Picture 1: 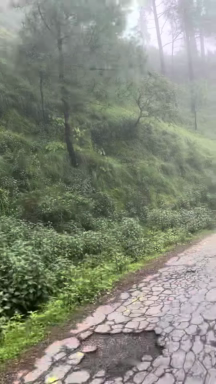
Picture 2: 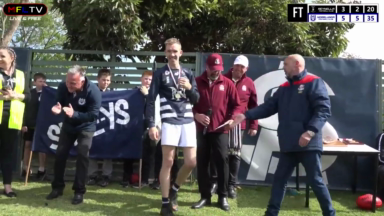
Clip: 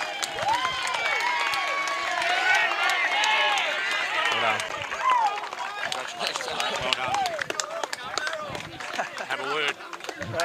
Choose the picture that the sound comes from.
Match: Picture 2